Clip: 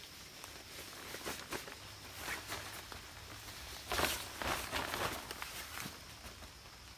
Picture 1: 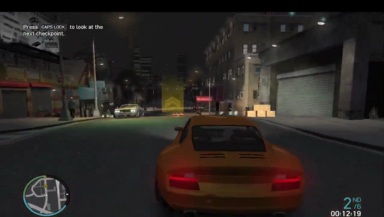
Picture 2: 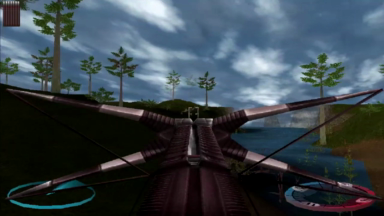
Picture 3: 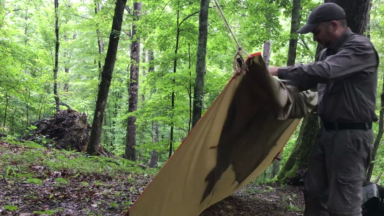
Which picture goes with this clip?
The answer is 3